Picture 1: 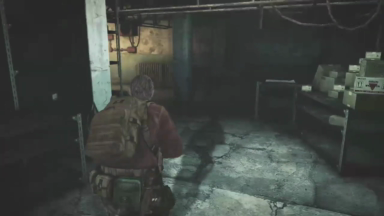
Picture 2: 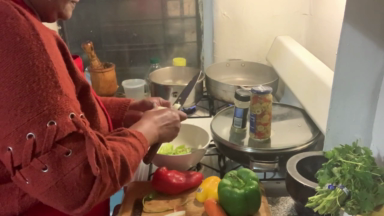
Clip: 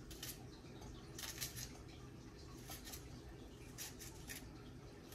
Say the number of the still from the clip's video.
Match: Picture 2